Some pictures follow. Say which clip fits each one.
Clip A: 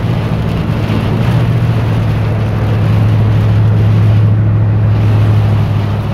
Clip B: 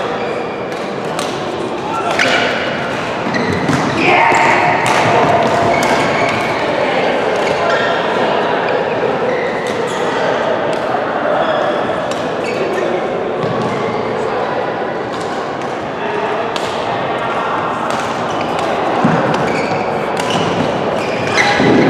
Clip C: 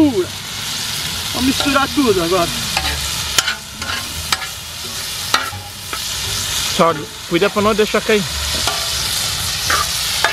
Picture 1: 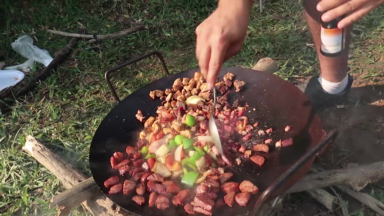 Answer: C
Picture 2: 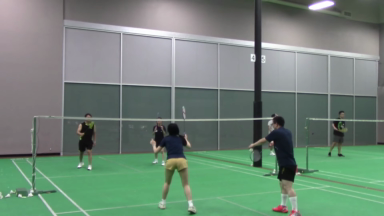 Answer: B